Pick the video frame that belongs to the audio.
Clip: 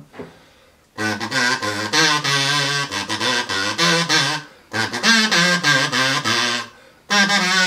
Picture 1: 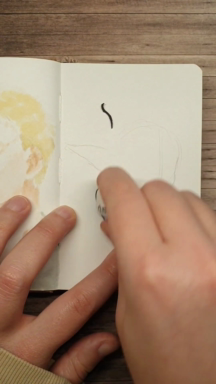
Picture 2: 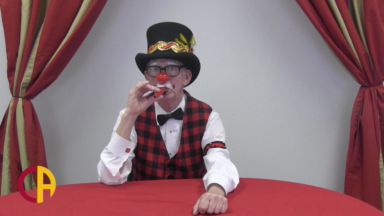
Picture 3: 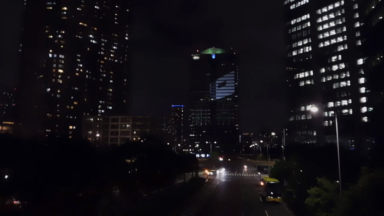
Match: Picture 2